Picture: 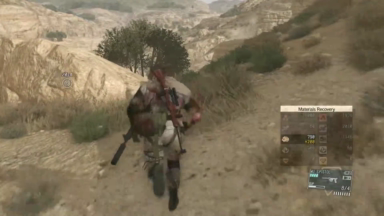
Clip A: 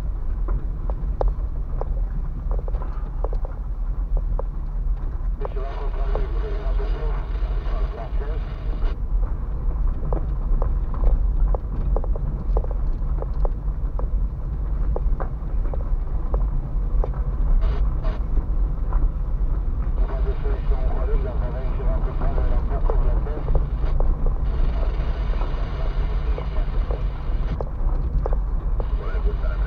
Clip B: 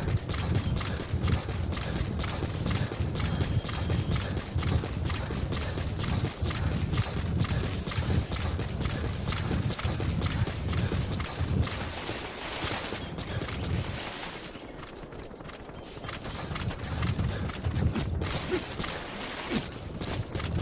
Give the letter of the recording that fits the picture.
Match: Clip B